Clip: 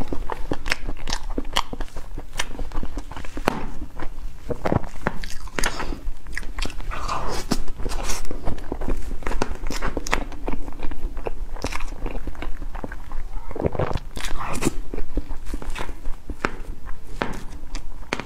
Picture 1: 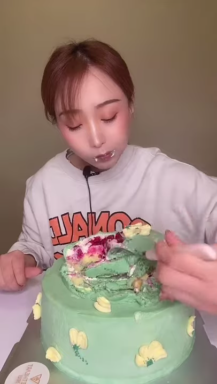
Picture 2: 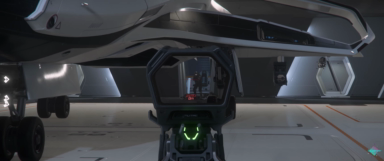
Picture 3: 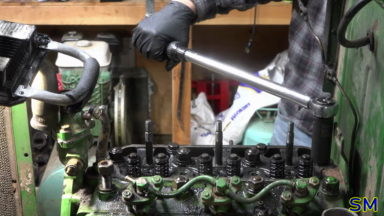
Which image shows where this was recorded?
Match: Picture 1